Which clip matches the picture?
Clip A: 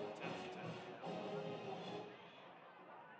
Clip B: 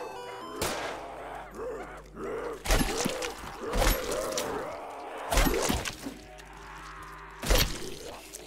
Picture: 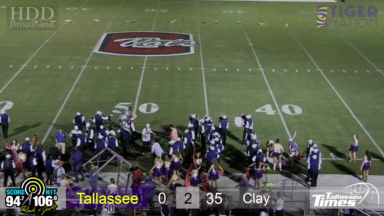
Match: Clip A